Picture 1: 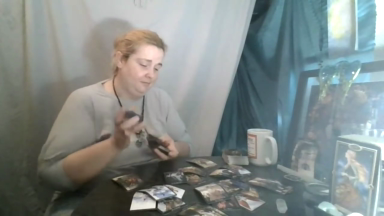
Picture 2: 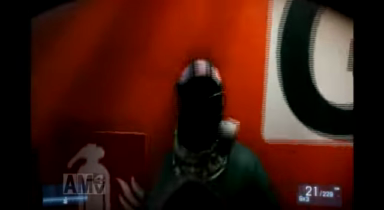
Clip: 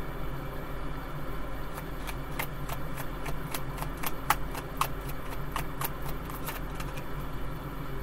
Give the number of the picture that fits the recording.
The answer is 1